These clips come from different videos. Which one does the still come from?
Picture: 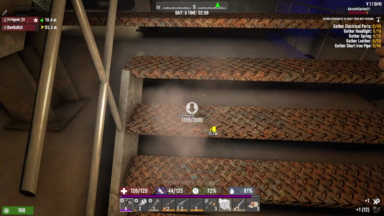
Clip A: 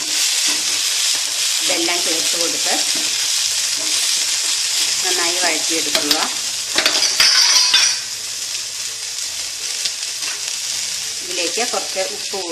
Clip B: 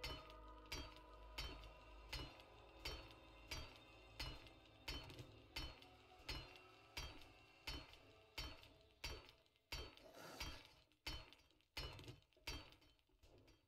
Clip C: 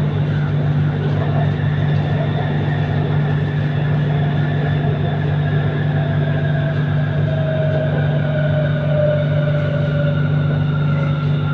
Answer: B